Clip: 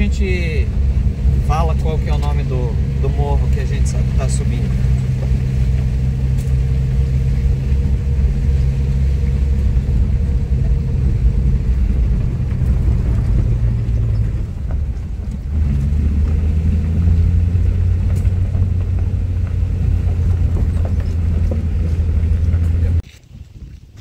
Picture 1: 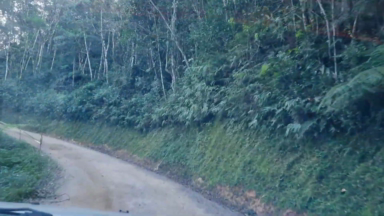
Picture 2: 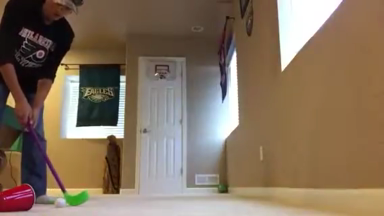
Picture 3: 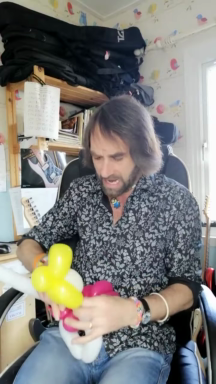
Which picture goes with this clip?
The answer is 1